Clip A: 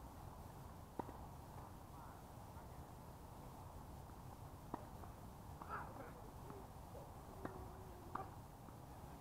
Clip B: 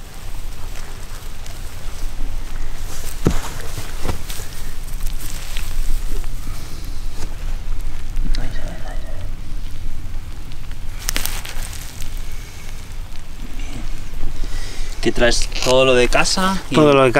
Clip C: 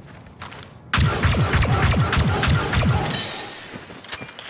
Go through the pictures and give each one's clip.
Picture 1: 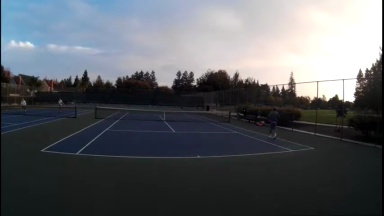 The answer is A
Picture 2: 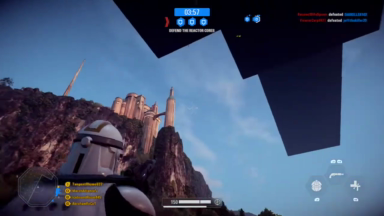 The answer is C